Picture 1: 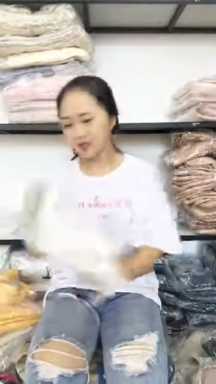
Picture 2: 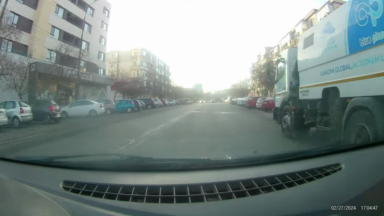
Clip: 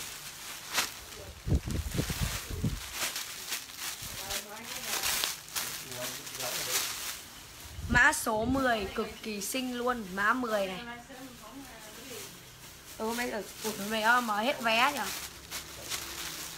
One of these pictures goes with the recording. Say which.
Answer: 1